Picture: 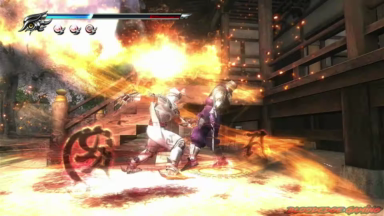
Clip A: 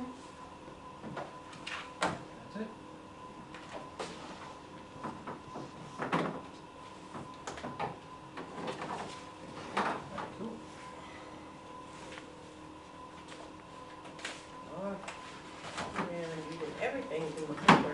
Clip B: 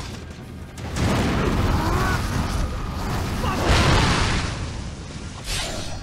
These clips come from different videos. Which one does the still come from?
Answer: B